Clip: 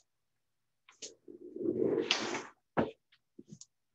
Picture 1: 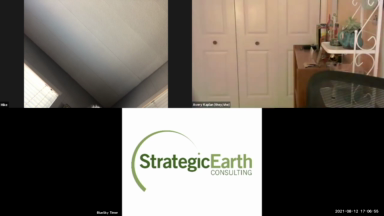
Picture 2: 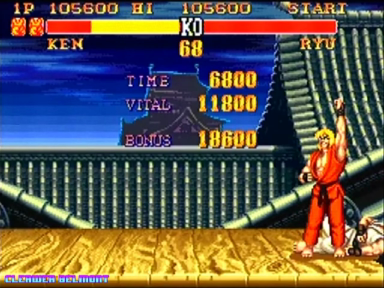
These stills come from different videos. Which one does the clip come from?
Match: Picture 1